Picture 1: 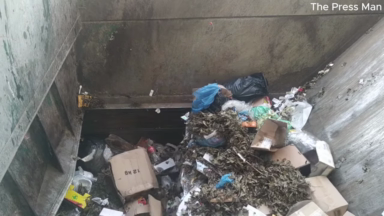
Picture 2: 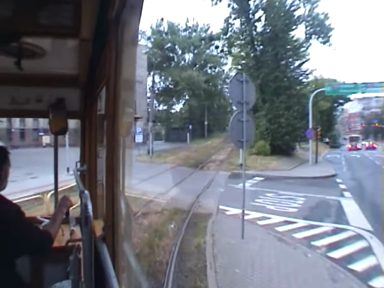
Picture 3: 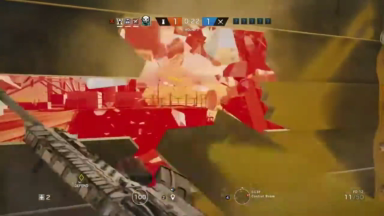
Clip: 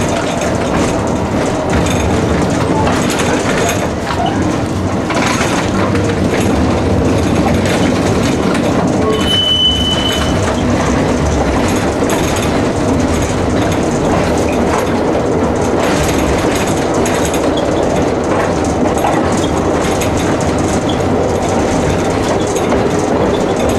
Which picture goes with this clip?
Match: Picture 2